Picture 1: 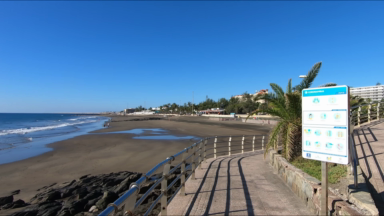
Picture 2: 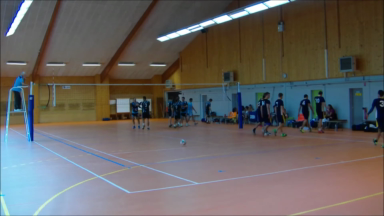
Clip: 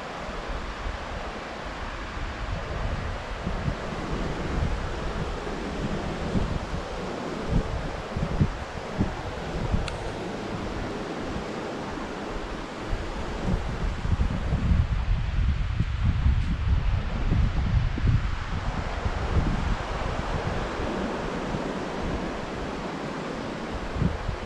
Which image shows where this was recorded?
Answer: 1